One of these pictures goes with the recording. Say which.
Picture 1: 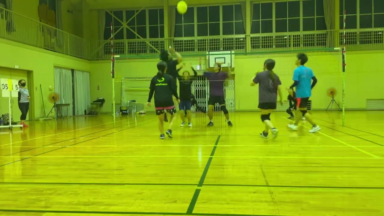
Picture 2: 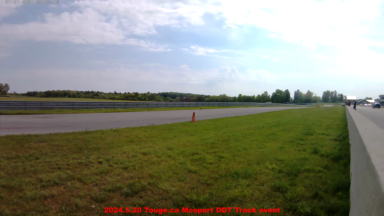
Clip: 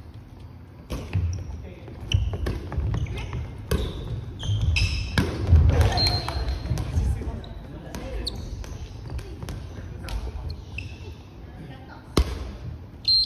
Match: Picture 1